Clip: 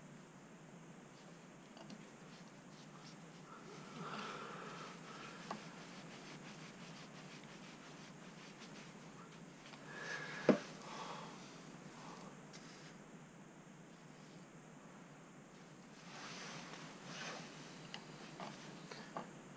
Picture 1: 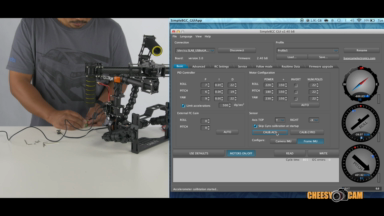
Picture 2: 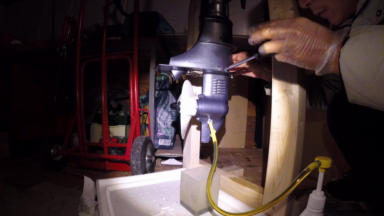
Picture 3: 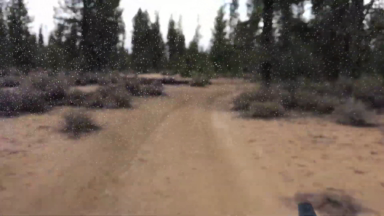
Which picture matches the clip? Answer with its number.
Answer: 2